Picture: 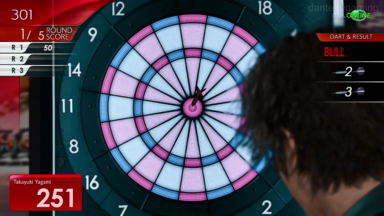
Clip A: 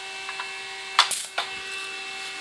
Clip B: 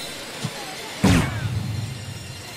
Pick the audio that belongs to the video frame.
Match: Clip B